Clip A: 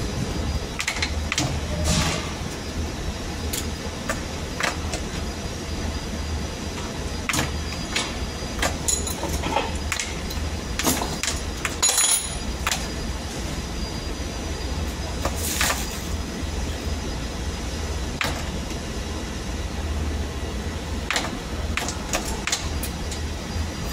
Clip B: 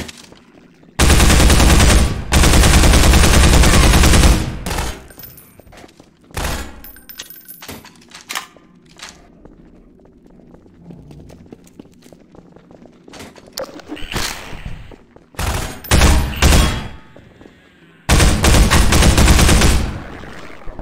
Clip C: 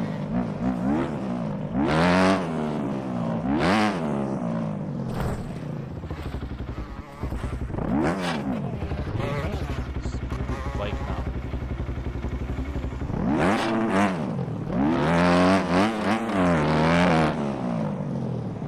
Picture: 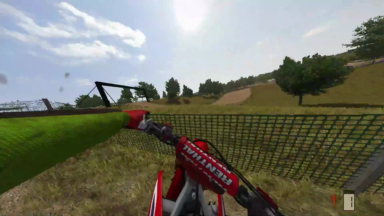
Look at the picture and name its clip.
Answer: C